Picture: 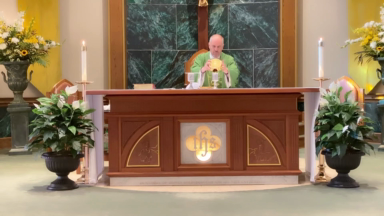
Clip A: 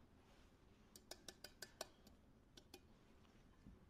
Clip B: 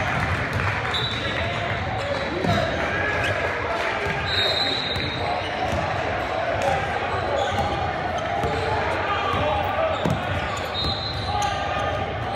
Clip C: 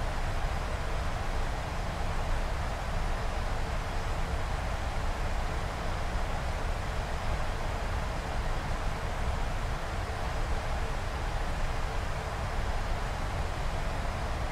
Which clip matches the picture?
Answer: A